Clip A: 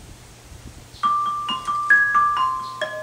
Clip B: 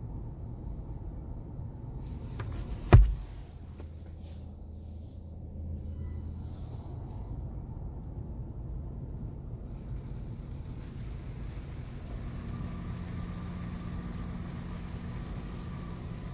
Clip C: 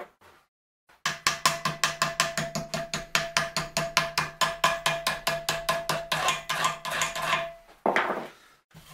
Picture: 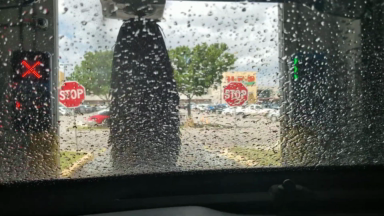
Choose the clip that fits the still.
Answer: B